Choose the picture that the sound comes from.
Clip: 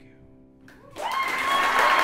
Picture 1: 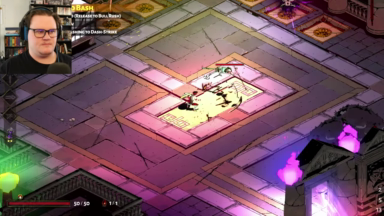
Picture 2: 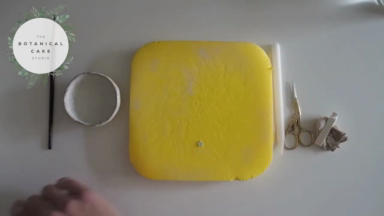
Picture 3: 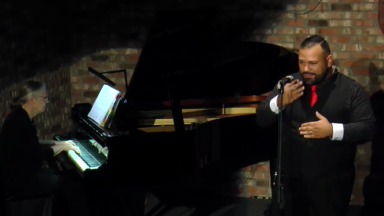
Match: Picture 3